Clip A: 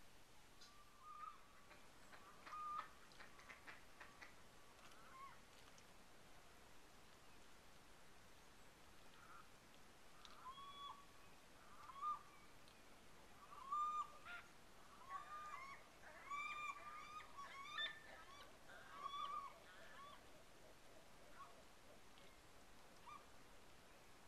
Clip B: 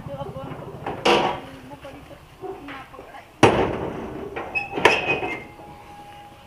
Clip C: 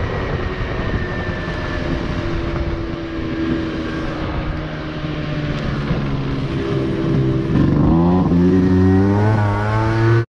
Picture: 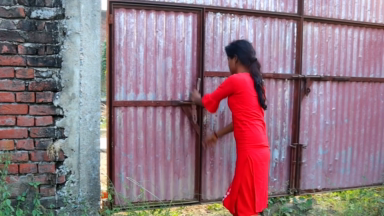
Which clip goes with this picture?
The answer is B